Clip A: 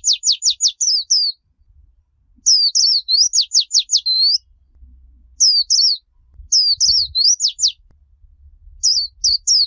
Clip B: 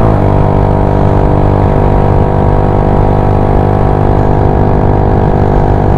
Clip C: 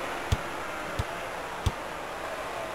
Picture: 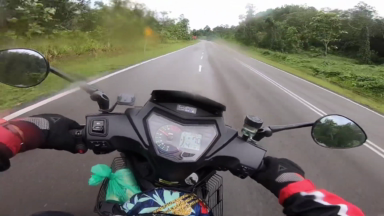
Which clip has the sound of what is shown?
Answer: B